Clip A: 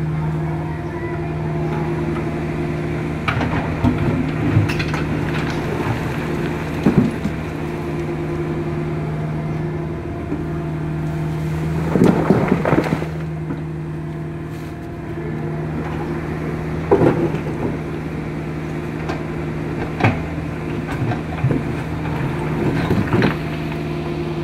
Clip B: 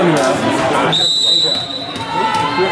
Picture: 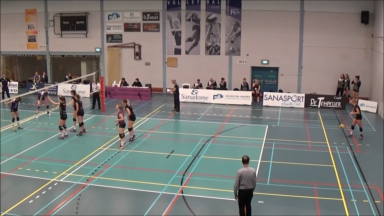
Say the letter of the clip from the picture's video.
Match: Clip B